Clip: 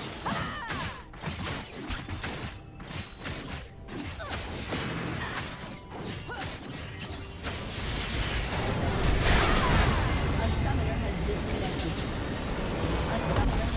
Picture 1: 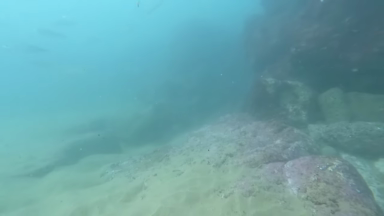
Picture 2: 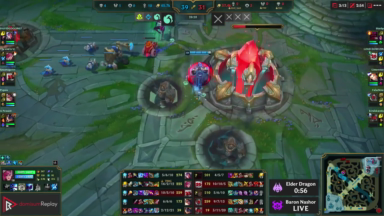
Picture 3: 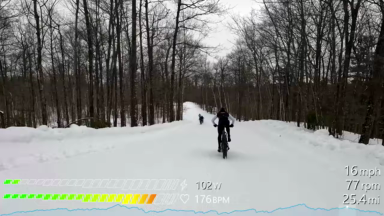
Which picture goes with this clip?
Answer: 2